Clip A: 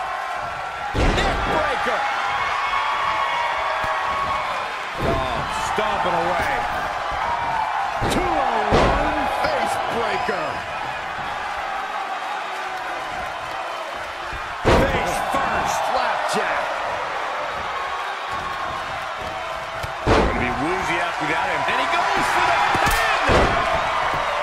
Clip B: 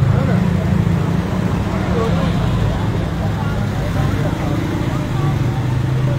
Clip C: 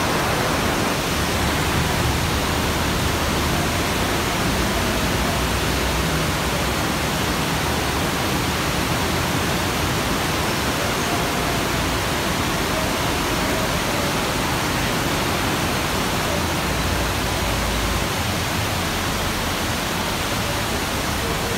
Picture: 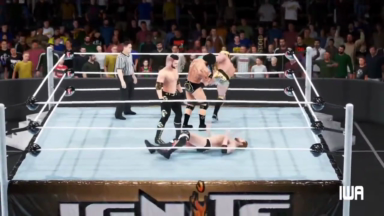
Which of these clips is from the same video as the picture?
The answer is A